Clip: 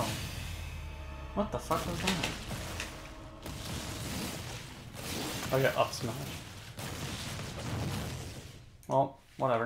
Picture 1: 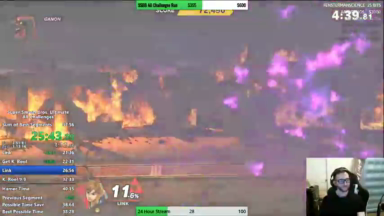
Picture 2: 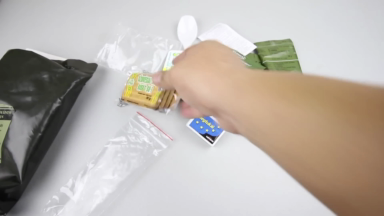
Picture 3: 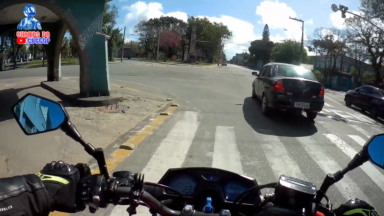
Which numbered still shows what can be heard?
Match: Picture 1